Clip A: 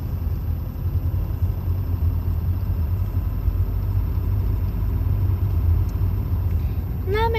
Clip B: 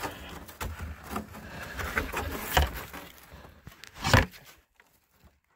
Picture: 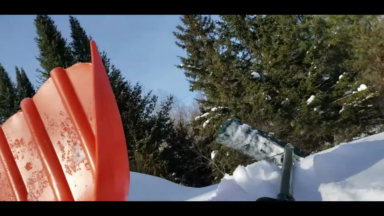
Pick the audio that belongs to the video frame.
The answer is B